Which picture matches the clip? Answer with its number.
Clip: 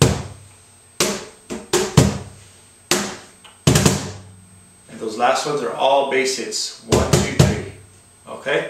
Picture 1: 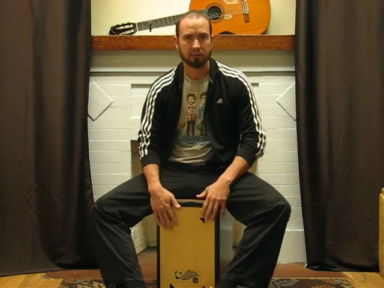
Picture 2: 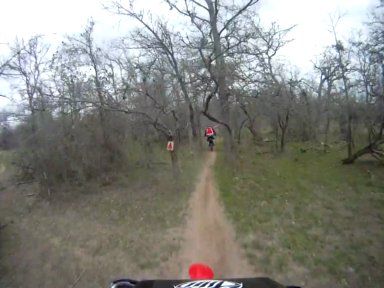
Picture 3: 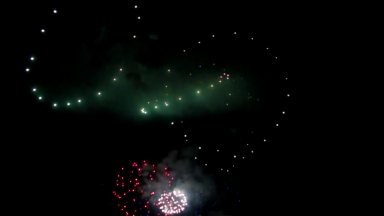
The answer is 1